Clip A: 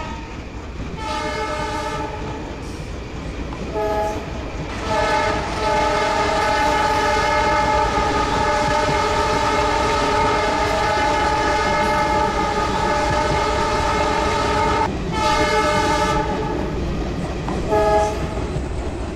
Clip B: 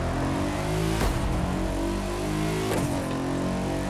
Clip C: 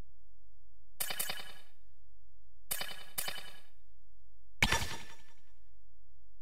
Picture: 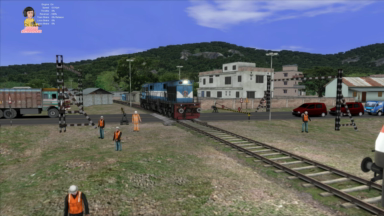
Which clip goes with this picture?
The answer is A